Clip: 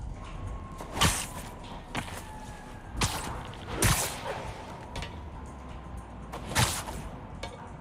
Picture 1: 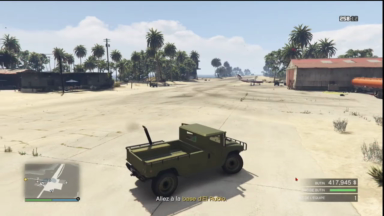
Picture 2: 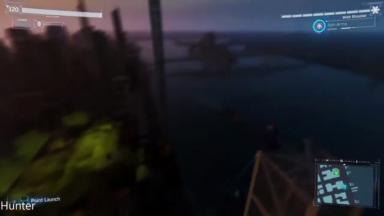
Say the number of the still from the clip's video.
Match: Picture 2